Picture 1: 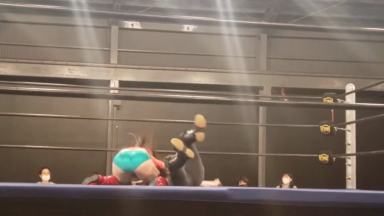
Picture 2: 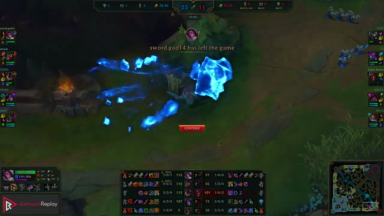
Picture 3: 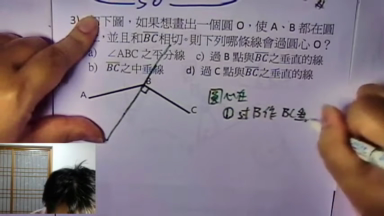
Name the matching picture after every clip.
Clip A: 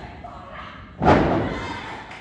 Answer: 1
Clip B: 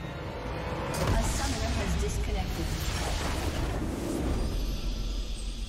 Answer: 2